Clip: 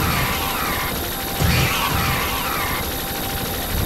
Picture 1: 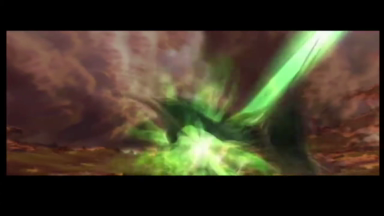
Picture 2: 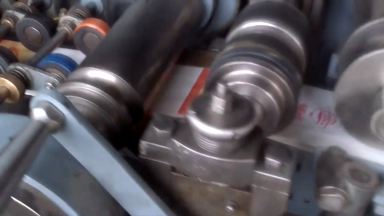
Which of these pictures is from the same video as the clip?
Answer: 1